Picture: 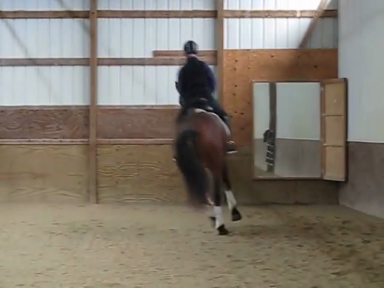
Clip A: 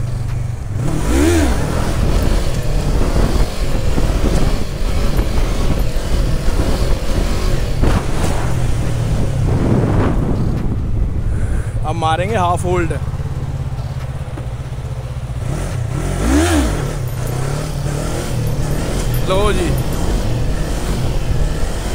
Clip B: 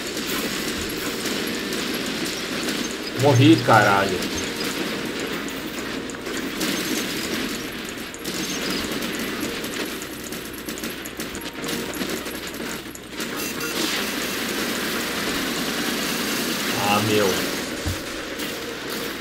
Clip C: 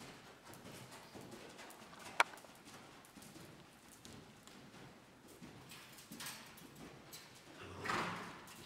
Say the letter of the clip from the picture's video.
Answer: C